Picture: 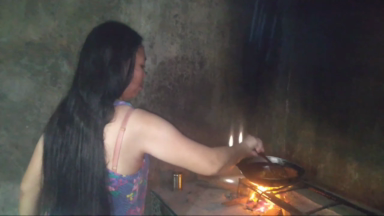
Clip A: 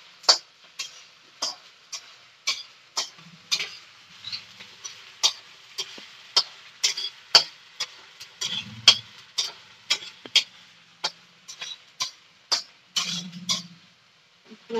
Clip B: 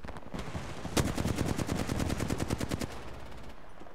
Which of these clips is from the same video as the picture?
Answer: A